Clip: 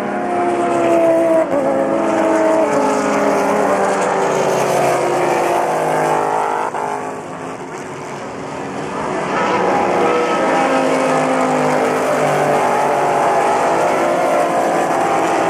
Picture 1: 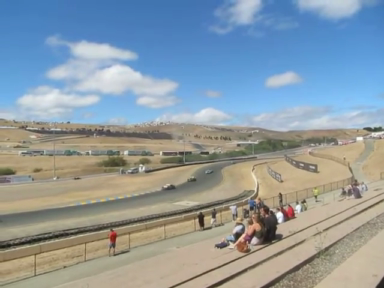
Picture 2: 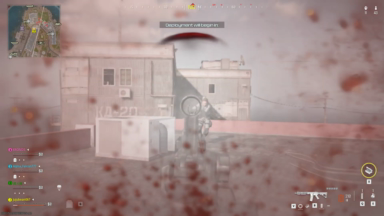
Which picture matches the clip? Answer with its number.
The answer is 1